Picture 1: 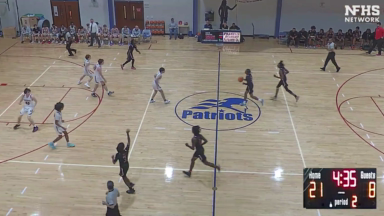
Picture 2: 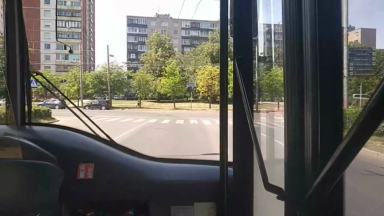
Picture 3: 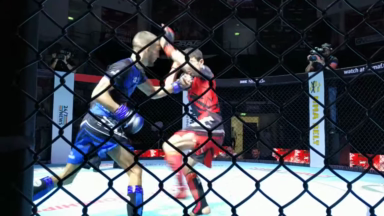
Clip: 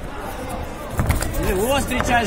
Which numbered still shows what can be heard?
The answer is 3